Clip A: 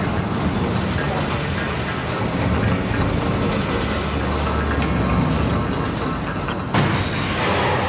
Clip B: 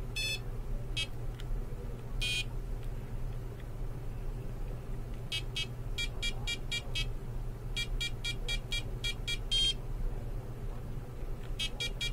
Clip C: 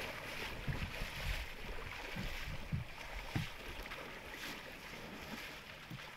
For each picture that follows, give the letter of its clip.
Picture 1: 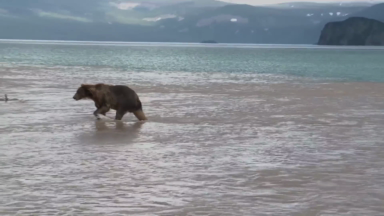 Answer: C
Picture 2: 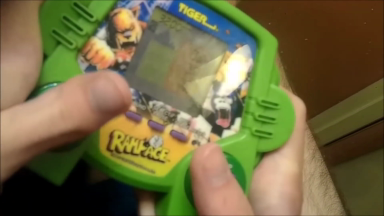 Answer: B